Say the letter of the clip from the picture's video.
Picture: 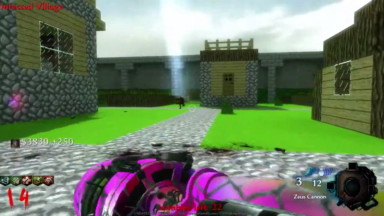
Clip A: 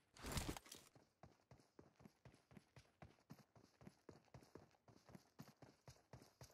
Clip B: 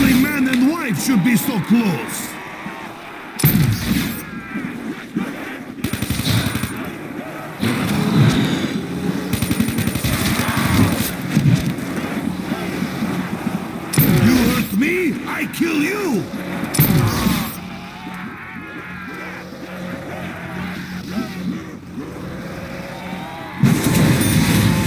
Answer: B